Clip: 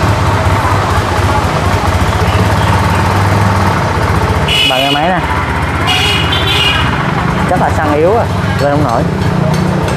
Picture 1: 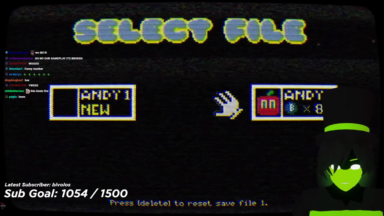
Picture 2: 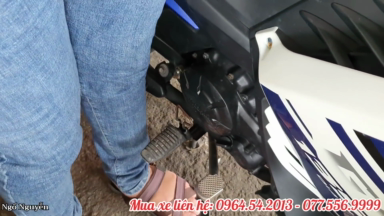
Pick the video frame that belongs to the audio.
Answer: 2